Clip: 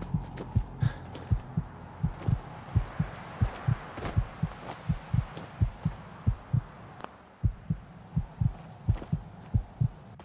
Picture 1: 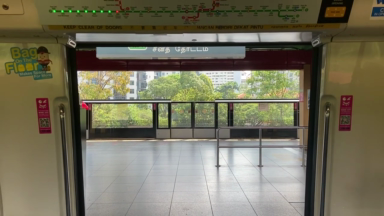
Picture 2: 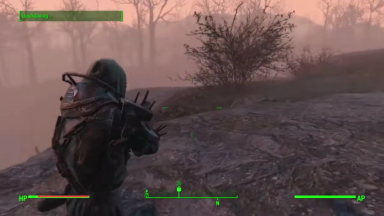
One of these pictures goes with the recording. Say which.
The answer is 2